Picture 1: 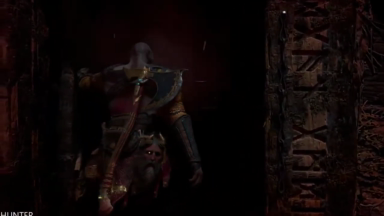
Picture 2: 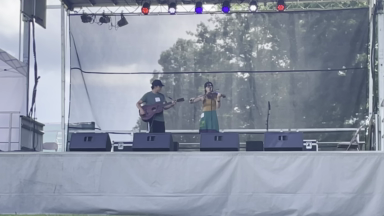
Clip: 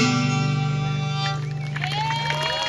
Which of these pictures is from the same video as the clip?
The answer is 2